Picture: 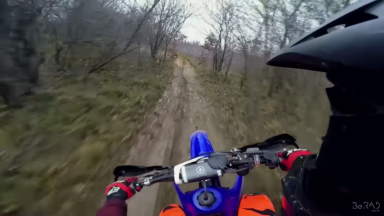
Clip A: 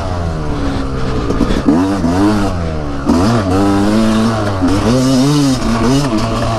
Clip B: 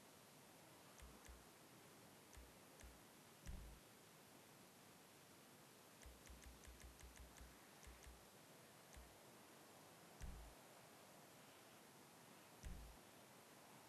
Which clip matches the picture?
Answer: A